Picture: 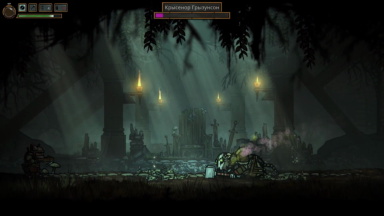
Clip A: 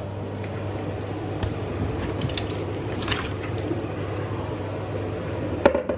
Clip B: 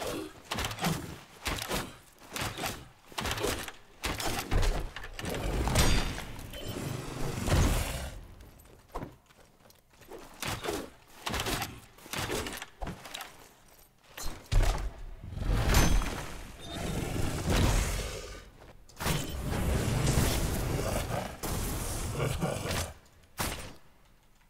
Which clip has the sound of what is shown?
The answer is B